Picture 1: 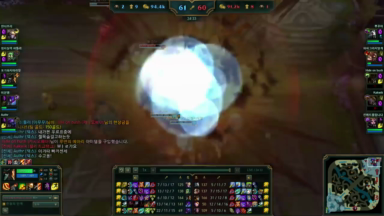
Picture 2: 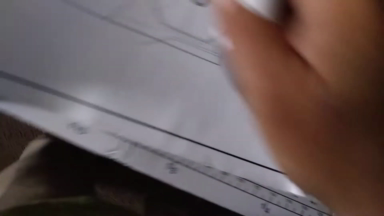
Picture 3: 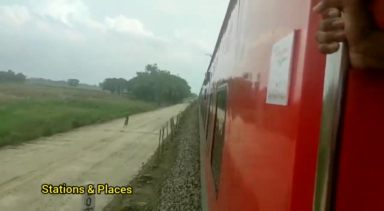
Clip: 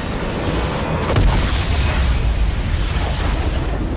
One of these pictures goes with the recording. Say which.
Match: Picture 1